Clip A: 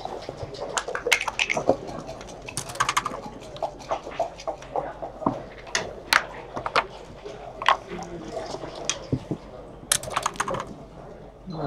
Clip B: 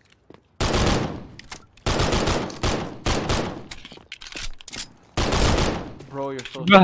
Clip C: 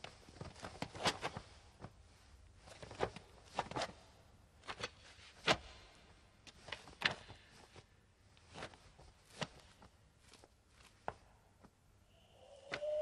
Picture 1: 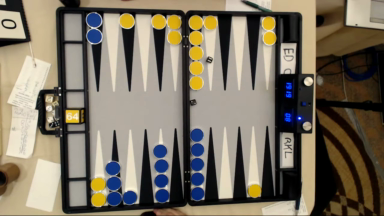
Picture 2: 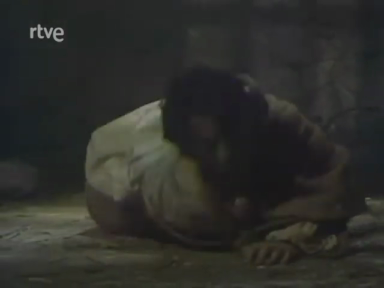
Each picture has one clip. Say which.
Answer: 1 A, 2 C